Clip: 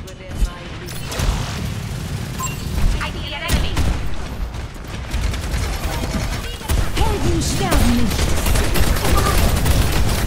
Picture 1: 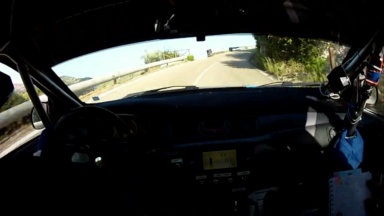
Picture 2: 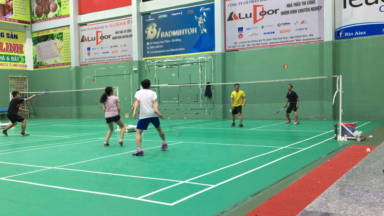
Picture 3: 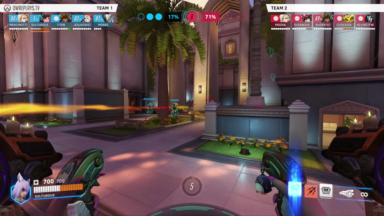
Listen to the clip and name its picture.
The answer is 3